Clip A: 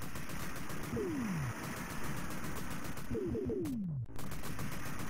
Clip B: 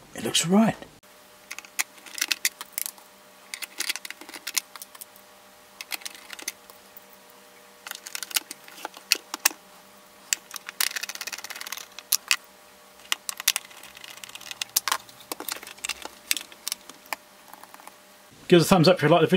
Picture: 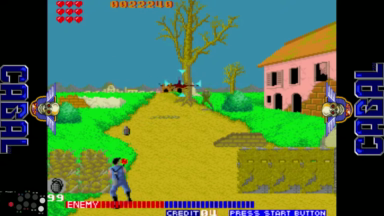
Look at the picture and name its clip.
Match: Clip A